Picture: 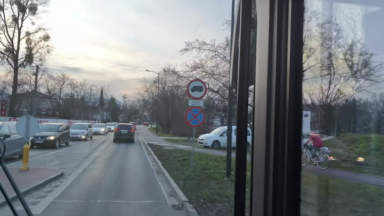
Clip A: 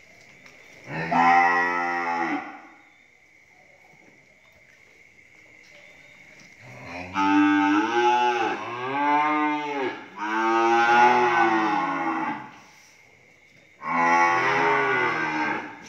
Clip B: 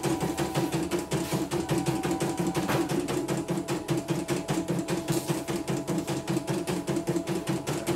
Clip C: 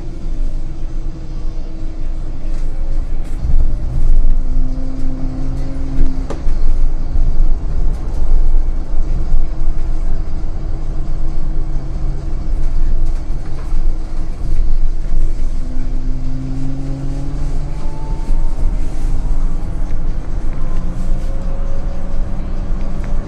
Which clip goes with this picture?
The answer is C